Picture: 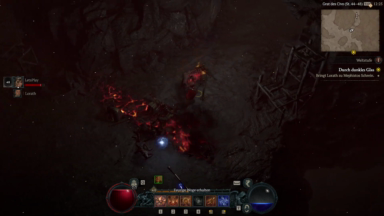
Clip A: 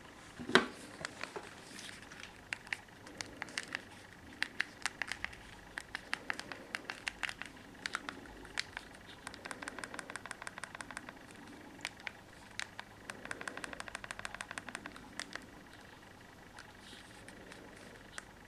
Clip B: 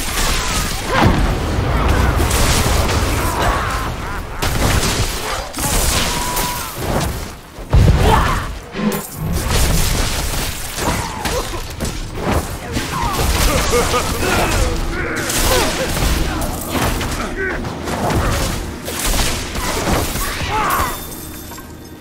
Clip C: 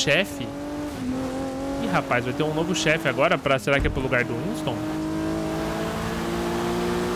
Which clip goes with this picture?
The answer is B